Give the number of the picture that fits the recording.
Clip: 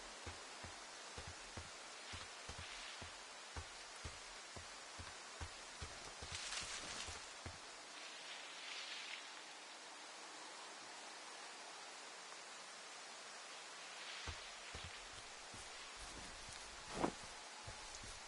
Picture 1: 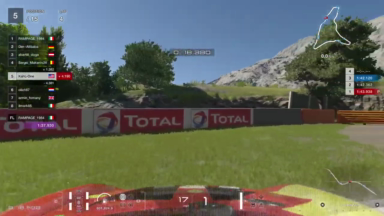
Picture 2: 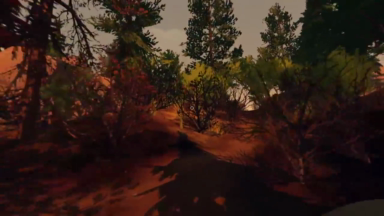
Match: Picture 2